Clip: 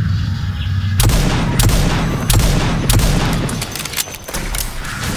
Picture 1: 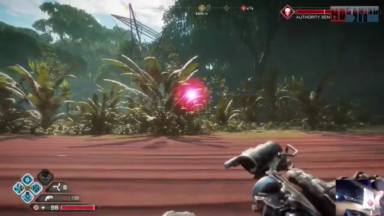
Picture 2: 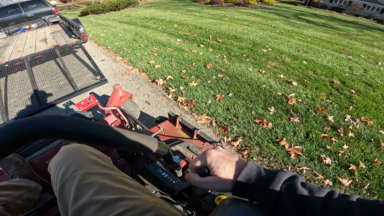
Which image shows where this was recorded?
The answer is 1